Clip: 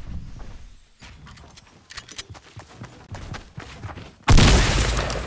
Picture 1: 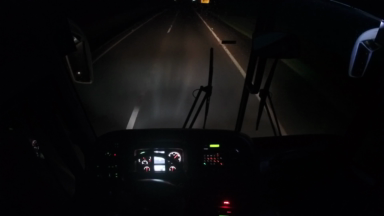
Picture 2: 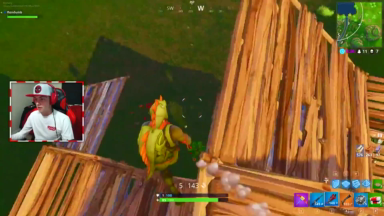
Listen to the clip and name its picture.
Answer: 2